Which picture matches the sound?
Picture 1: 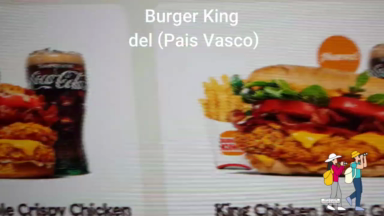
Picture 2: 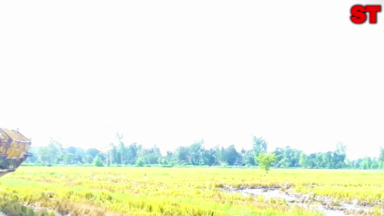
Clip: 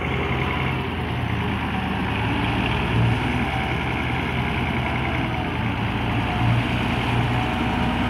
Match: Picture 2